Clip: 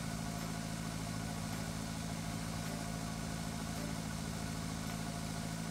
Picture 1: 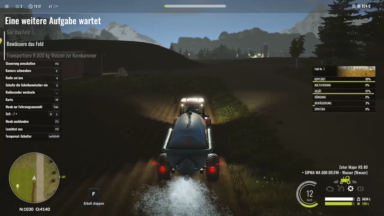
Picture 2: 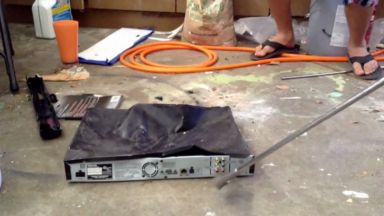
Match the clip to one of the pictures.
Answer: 1